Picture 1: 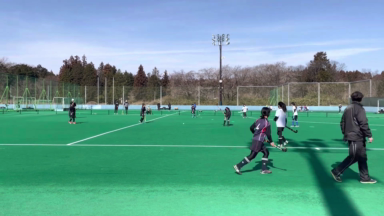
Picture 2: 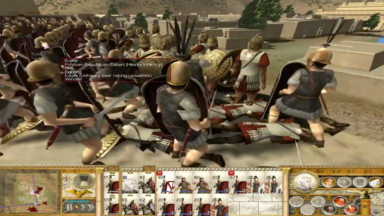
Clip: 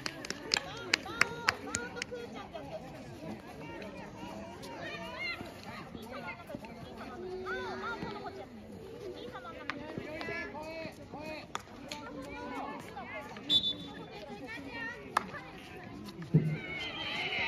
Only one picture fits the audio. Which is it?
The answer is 1